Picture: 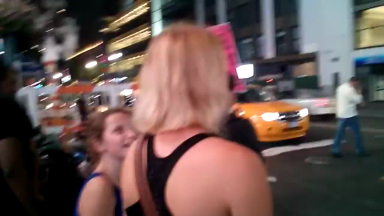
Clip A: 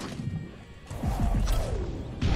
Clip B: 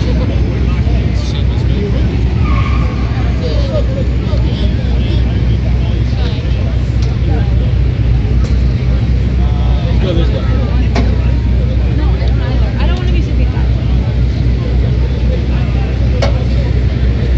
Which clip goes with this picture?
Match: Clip B